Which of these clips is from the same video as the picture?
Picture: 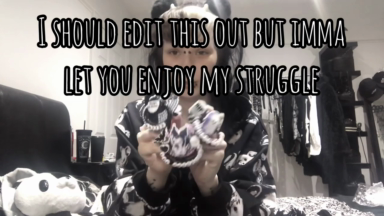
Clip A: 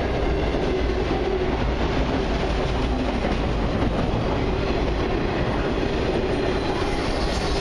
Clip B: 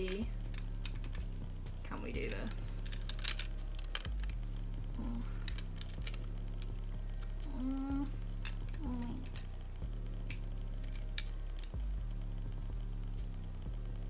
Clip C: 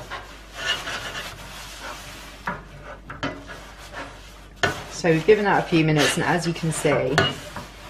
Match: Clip B